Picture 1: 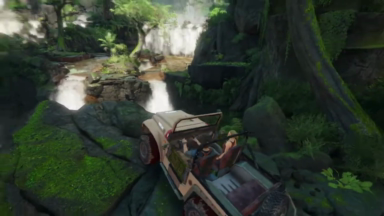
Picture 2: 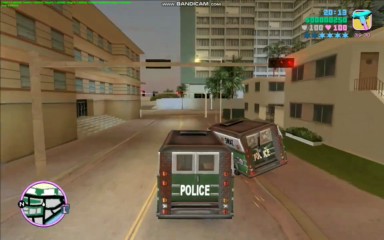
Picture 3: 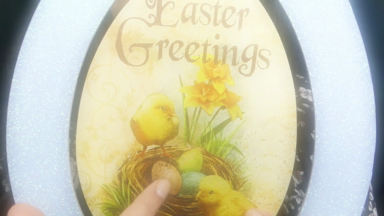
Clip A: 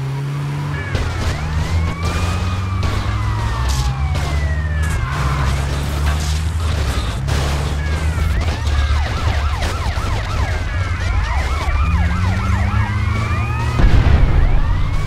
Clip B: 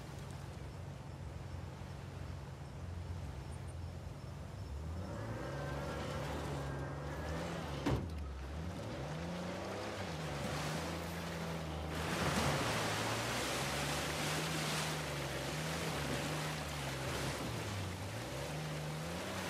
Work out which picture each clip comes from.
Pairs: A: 2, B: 1